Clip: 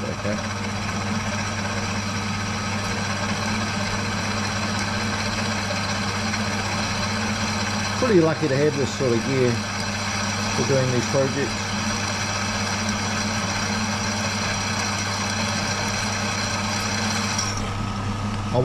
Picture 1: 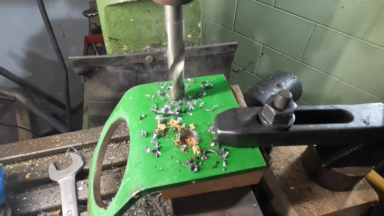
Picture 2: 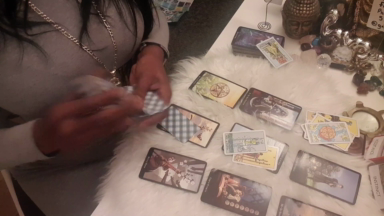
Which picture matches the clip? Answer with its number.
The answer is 1